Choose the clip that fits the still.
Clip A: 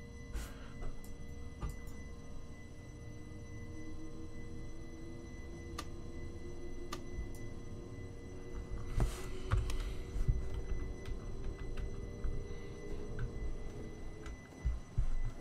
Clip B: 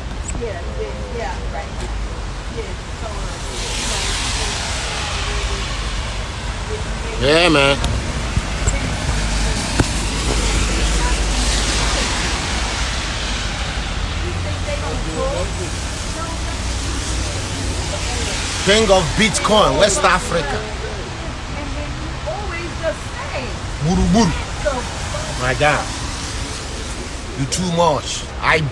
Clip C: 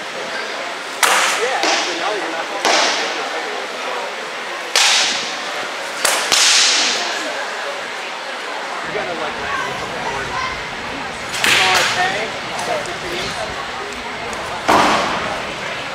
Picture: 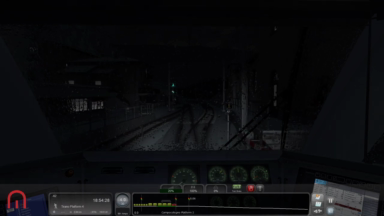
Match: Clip A